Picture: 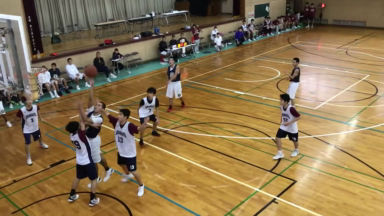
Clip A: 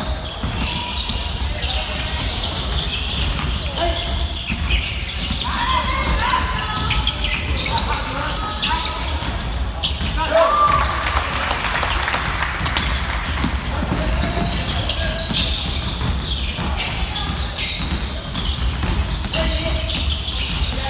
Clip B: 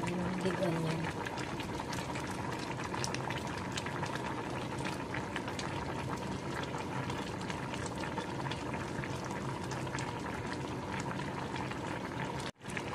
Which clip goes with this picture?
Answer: A